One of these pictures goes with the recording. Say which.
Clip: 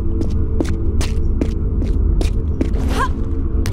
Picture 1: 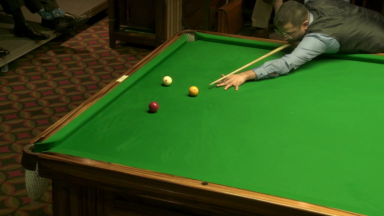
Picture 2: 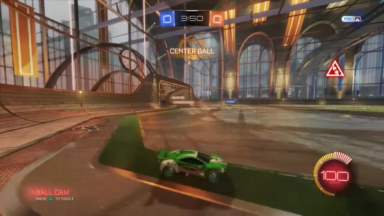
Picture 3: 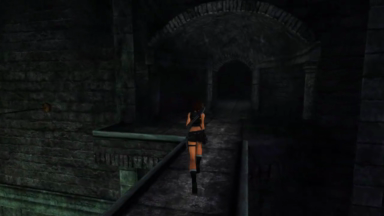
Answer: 3